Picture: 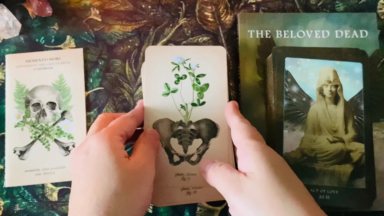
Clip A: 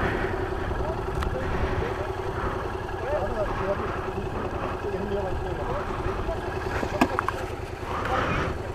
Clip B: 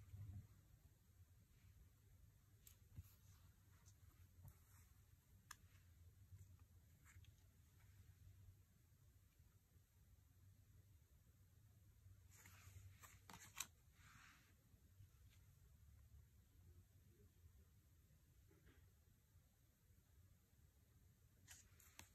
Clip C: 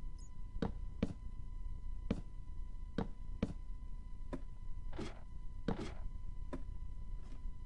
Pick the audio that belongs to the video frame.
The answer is B